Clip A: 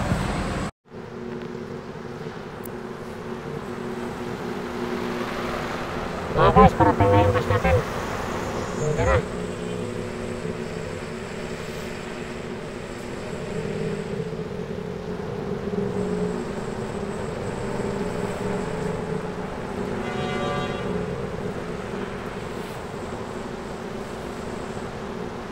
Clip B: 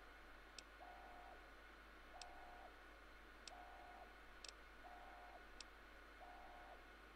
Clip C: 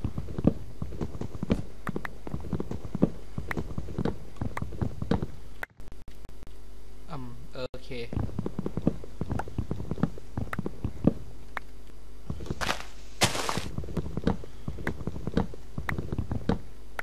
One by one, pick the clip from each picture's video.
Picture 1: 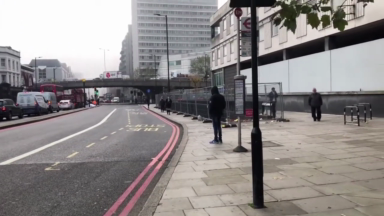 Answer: A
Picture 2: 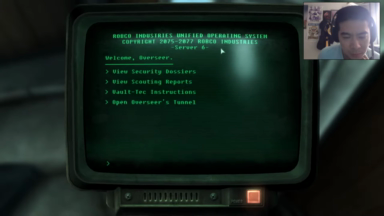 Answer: B